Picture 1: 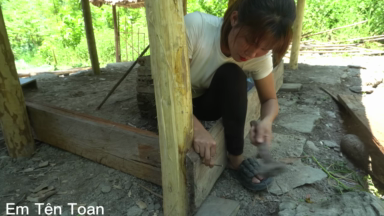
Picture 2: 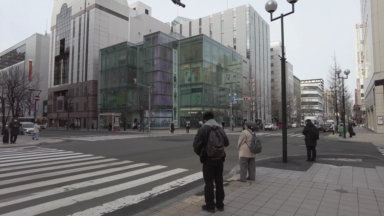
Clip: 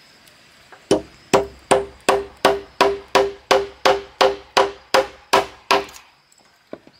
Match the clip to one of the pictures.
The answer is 1